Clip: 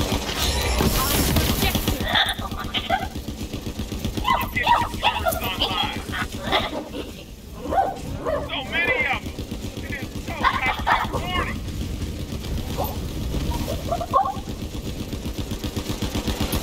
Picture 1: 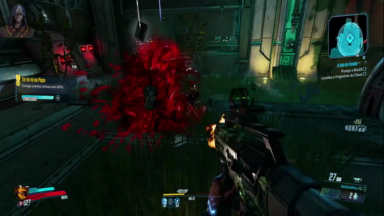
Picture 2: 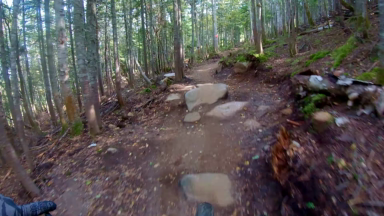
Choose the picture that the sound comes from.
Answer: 1